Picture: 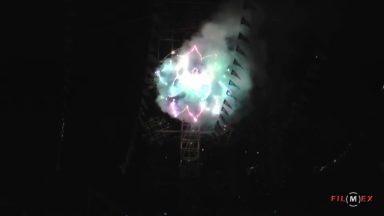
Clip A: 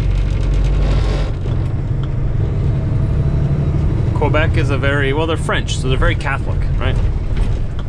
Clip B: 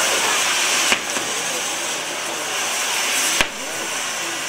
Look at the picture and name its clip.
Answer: B